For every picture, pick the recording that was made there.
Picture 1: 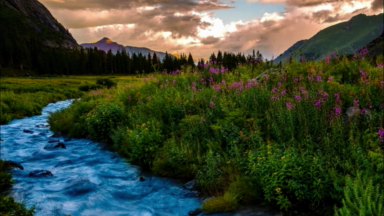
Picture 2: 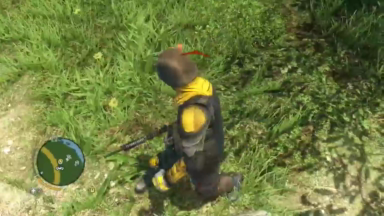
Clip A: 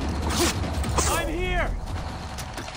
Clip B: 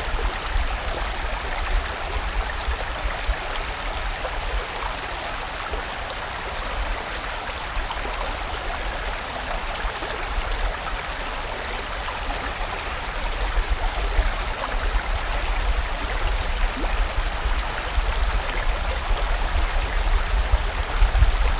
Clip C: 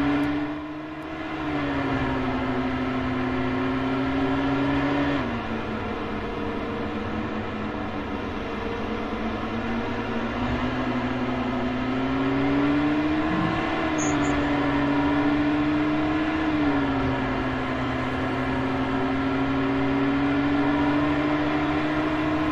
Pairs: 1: B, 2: A